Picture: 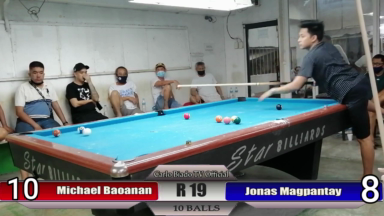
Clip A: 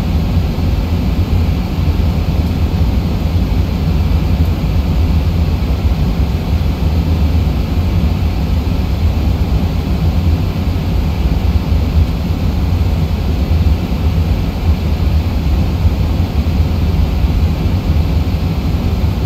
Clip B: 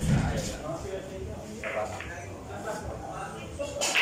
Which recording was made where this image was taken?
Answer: B